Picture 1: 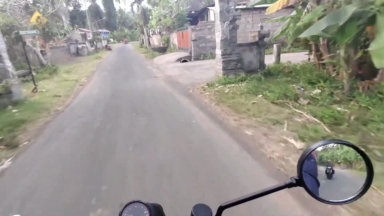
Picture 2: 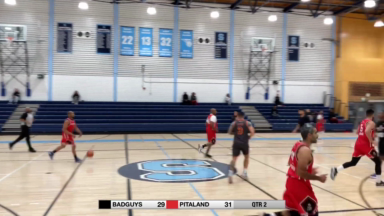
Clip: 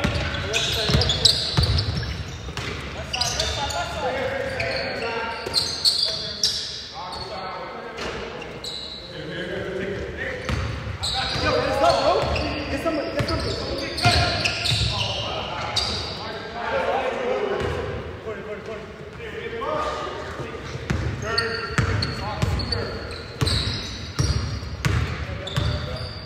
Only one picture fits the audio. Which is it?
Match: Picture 2